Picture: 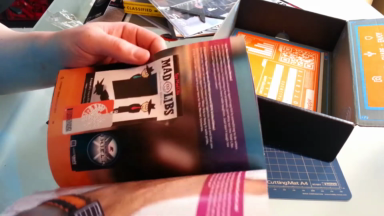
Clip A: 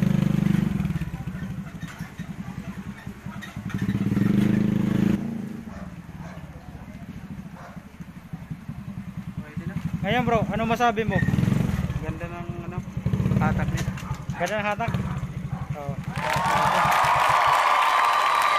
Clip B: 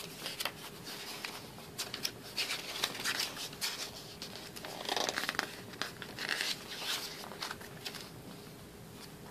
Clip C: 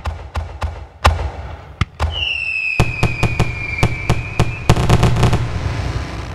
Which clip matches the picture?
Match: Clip B